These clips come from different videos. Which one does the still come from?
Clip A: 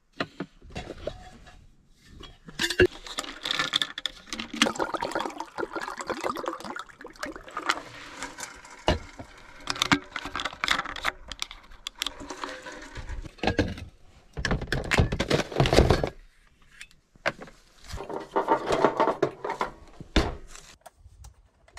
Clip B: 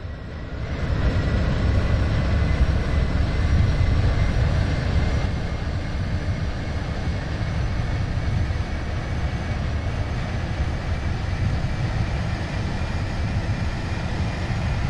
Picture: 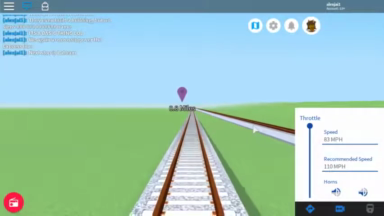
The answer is B